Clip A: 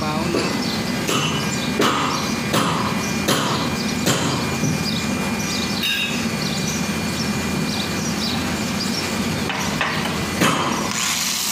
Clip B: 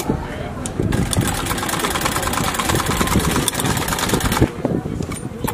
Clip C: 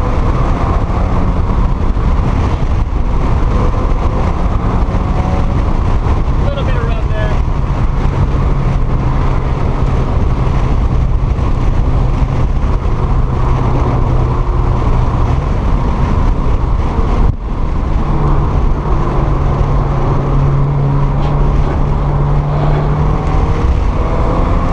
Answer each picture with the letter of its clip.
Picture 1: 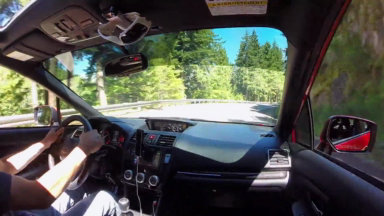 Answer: C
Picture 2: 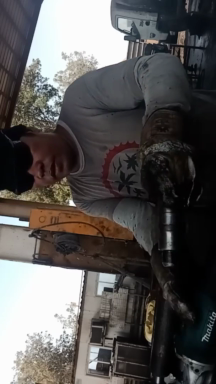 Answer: A